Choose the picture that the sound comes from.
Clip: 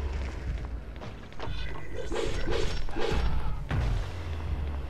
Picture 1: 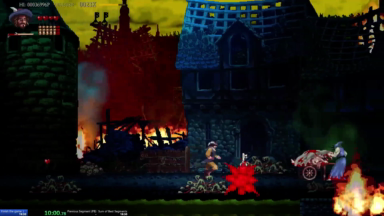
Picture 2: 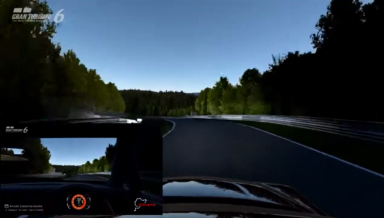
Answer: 1